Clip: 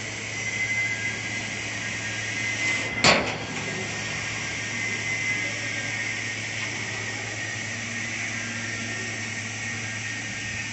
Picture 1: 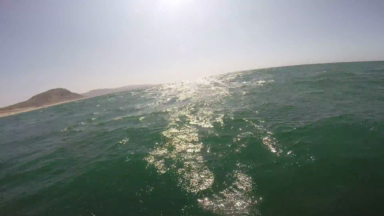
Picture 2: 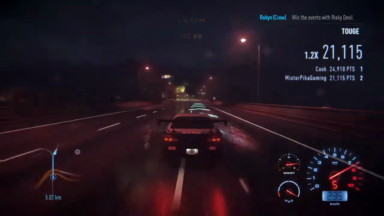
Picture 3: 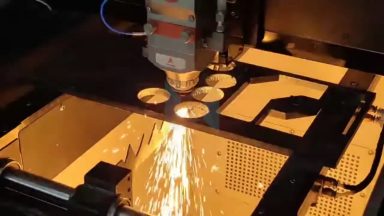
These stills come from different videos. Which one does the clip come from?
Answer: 3